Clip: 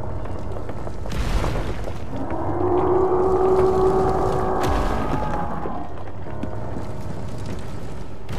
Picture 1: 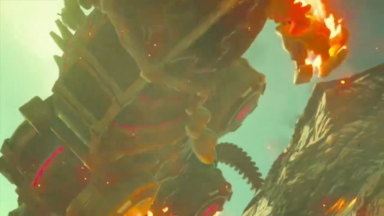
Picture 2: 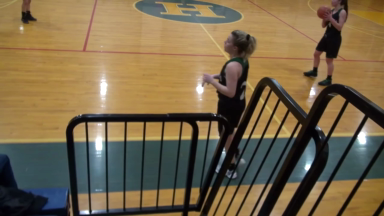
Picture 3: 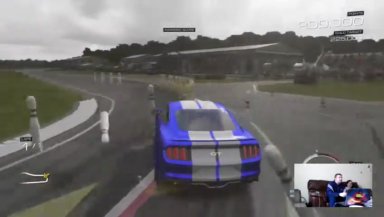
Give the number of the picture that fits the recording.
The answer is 1